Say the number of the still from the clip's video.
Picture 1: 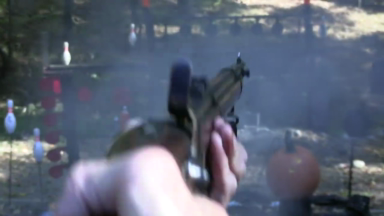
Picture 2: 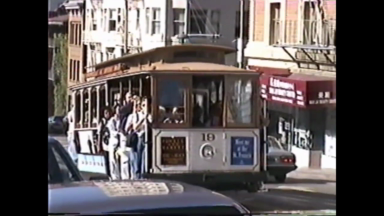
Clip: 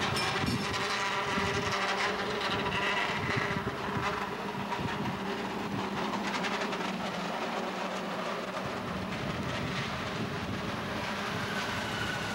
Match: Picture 2